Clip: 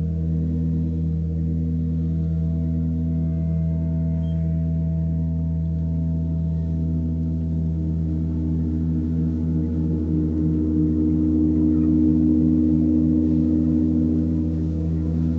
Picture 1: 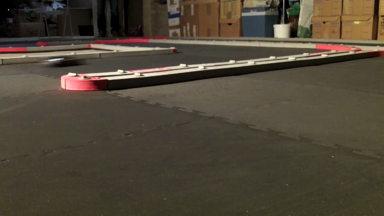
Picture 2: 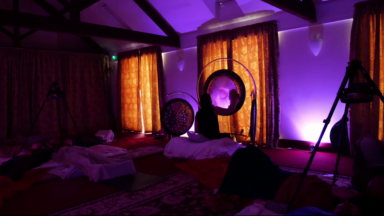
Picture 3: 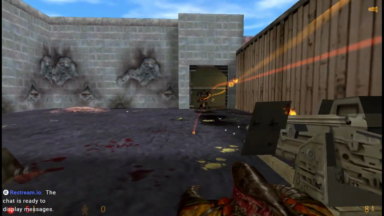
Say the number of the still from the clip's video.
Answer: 2